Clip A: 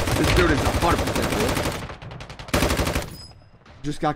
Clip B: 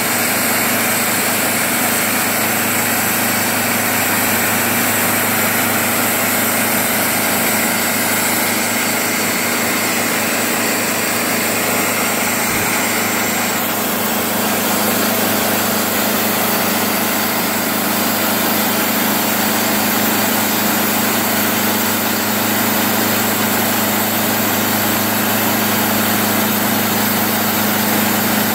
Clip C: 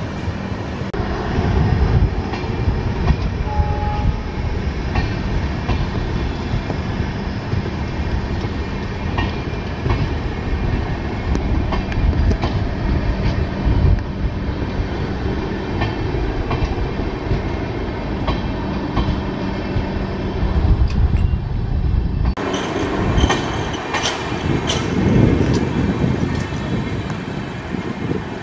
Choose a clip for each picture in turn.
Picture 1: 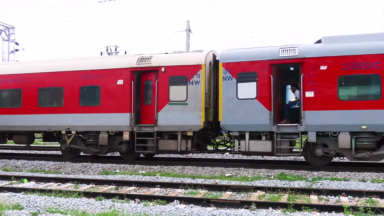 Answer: C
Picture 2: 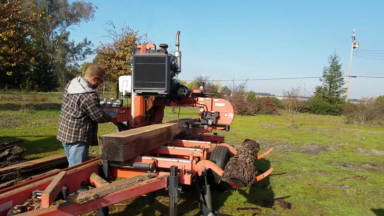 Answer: B